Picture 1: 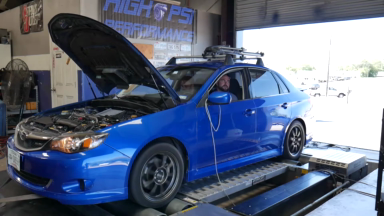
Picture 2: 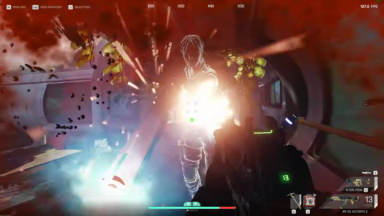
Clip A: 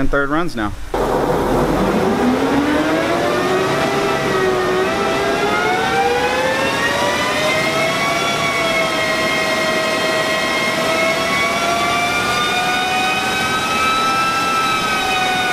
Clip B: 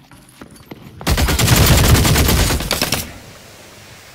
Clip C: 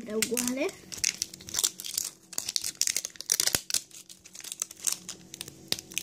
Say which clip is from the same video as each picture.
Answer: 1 A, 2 B